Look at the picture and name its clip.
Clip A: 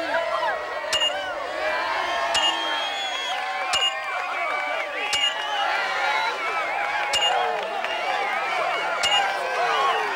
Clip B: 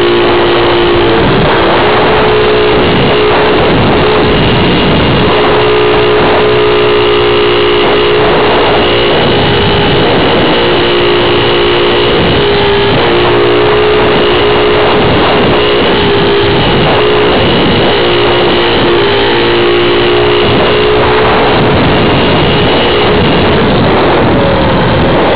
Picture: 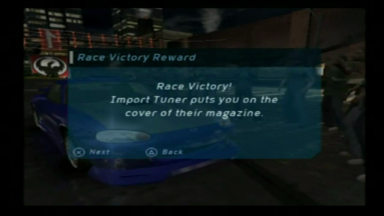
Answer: A